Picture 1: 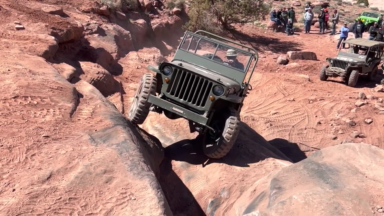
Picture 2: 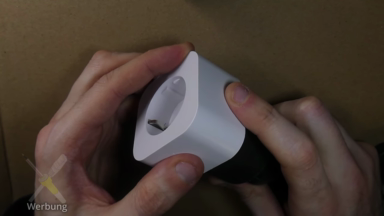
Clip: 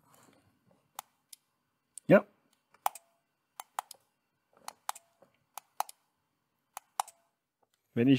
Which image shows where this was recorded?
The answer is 2